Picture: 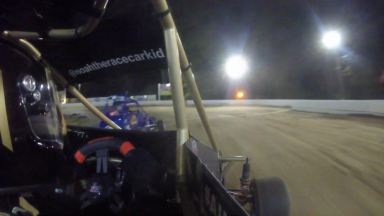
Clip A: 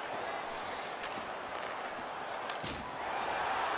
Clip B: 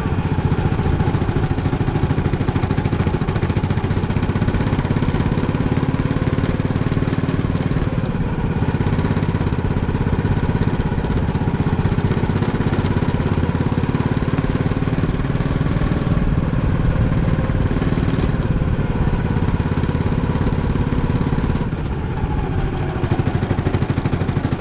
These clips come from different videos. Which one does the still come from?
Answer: B